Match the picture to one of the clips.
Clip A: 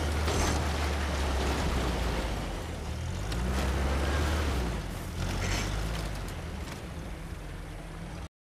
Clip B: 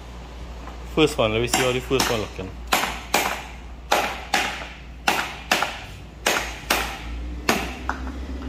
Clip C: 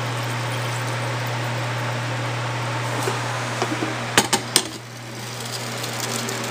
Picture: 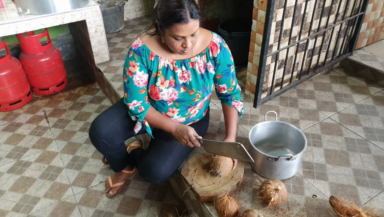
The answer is B